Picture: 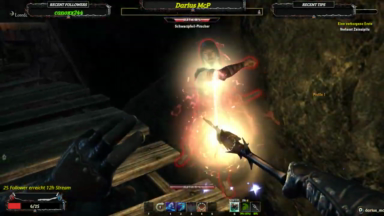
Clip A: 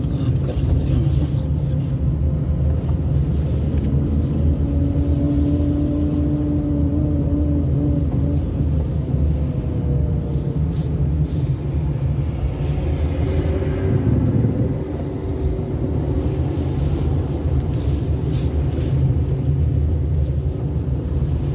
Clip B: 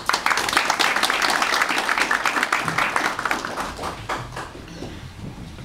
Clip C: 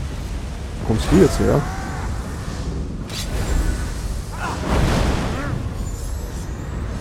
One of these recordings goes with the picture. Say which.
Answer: C